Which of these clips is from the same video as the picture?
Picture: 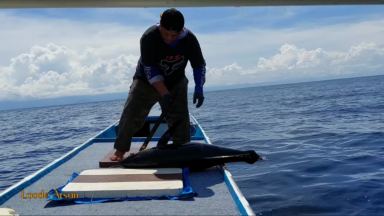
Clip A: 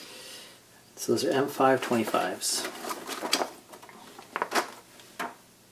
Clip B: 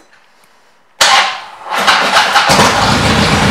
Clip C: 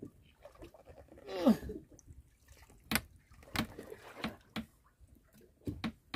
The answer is C